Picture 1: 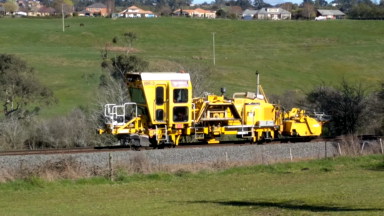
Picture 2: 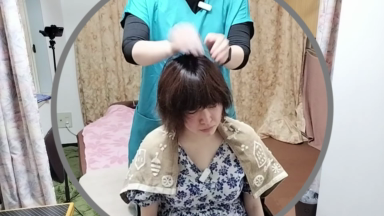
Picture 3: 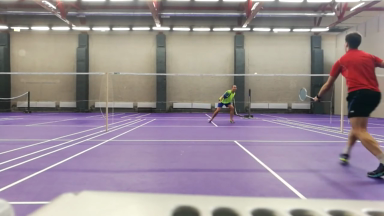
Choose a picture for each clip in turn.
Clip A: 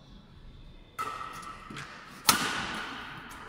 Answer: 3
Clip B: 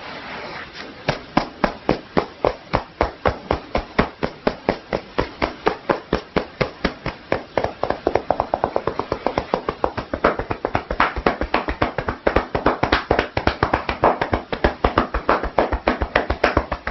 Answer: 2